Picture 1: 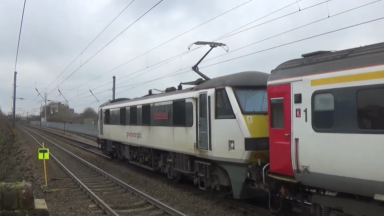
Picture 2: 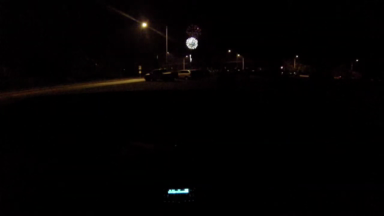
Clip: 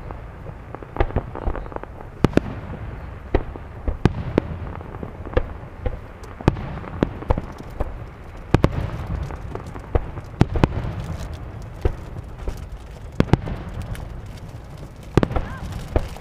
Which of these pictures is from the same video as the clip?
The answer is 2